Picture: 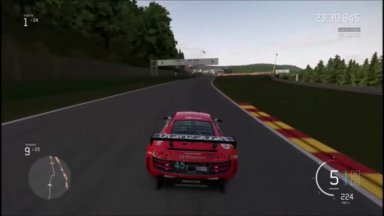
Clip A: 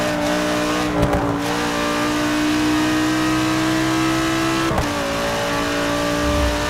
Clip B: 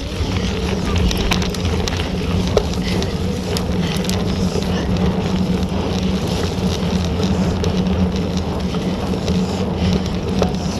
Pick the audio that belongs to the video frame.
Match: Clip A